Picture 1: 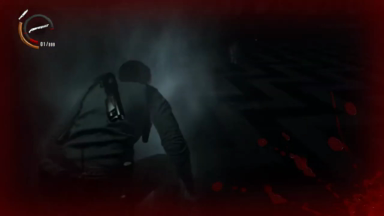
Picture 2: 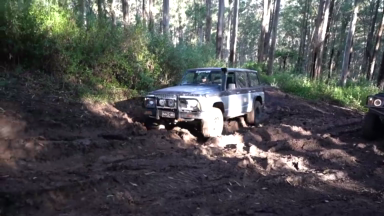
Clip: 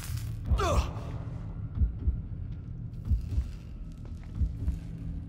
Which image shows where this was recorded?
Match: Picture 1